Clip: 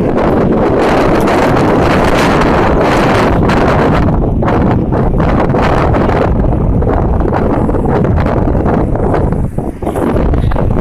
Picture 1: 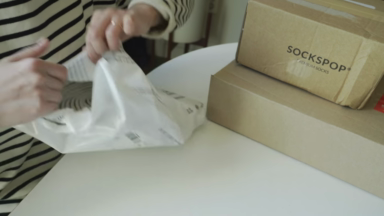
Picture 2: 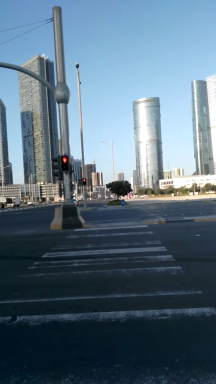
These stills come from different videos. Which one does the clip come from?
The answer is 2